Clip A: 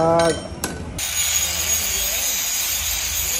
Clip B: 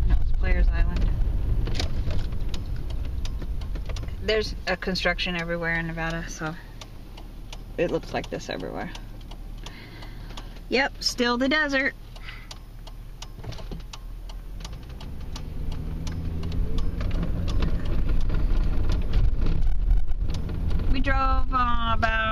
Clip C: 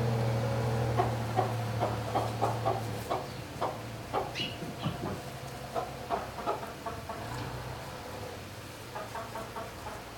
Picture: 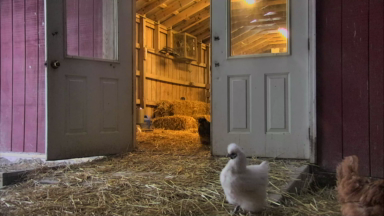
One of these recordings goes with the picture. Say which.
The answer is C